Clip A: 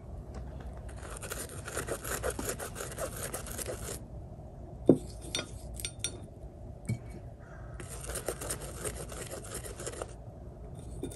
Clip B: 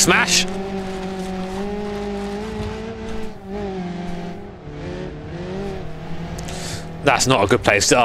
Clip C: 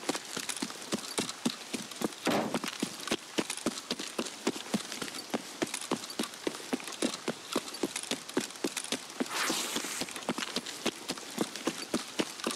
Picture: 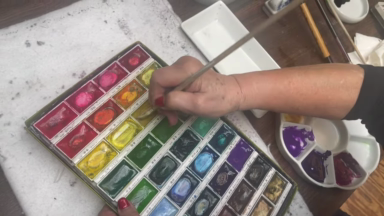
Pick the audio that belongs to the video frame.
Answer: A